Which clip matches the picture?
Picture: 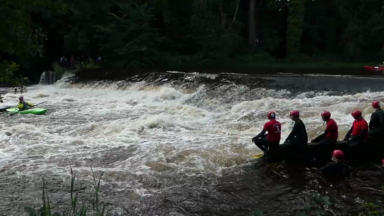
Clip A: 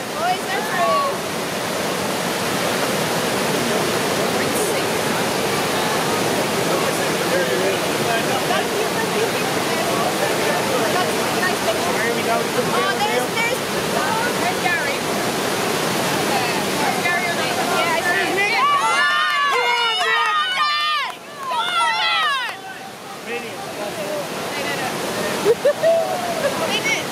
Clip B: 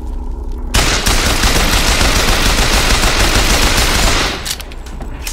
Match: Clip A